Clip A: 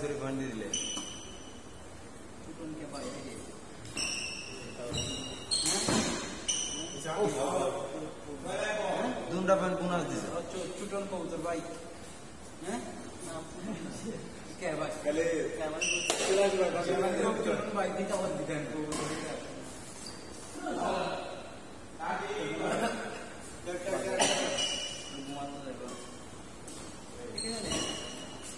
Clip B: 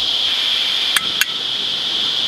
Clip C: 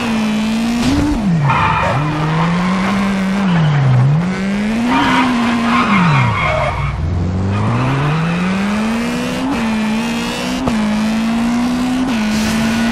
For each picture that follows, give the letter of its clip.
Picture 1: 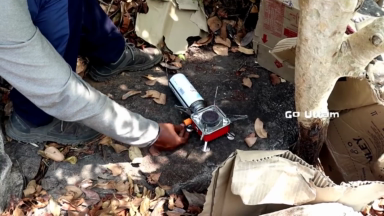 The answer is B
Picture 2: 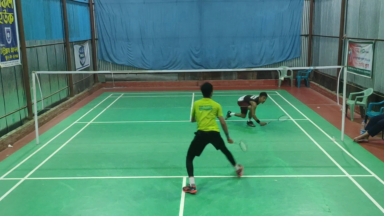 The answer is A